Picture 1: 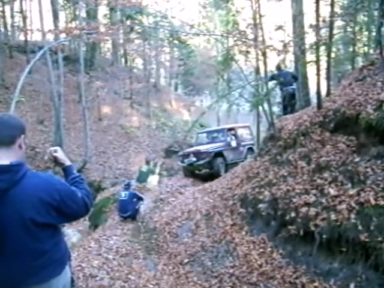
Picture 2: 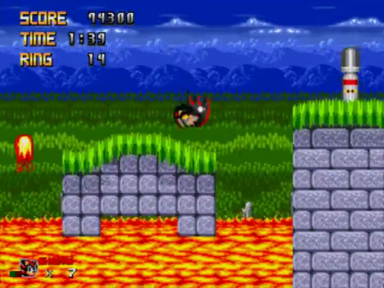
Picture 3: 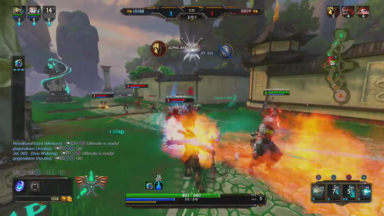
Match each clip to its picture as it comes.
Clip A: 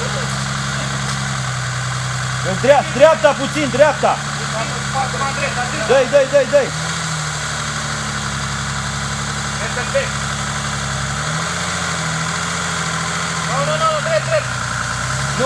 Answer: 1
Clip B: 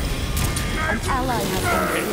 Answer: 3